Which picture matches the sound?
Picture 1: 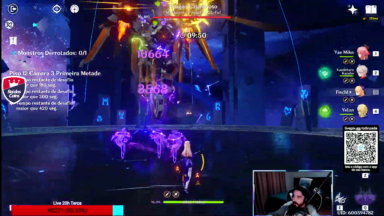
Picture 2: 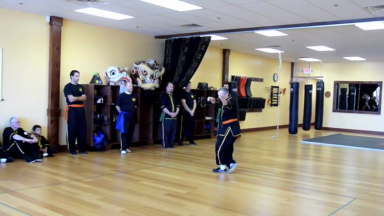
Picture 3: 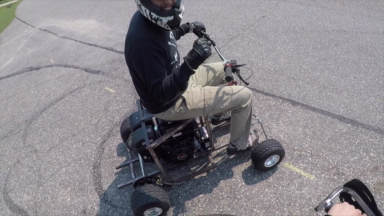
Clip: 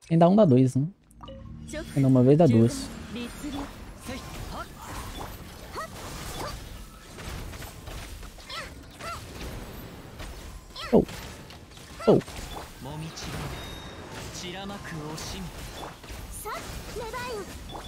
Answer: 1